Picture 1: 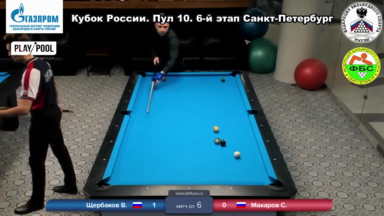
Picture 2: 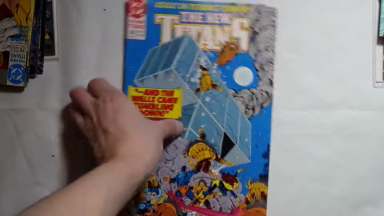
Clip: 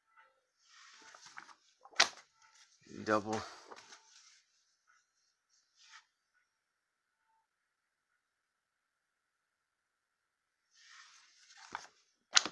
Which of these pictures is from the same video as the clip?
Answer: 2